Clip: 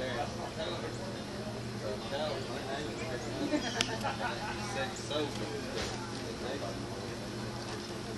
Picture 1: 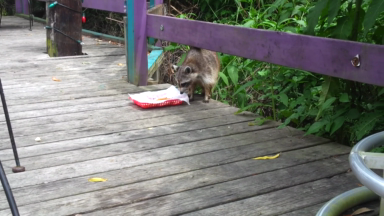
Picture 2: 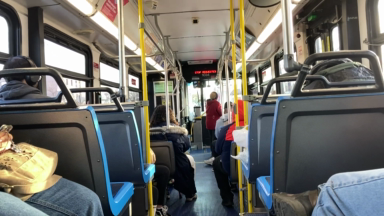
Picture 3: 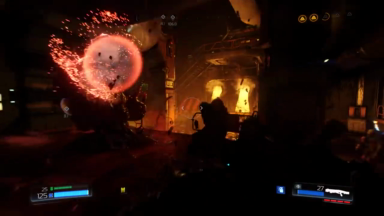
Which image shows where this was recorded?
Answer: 1